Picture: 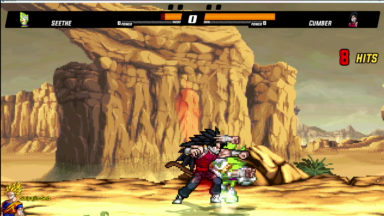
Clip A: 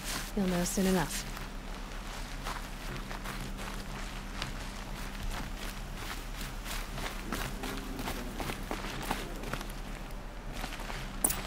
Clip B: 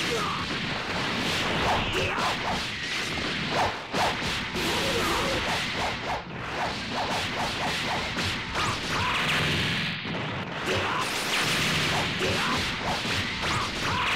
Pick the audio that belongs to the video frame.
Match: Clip B